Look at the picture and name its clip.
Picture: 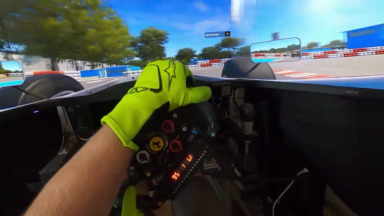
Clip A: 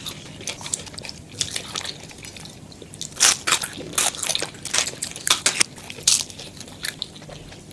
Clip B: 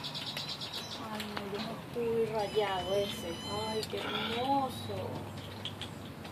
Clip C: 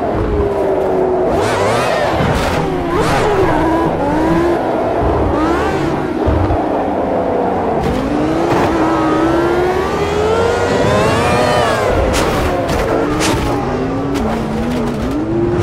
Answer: C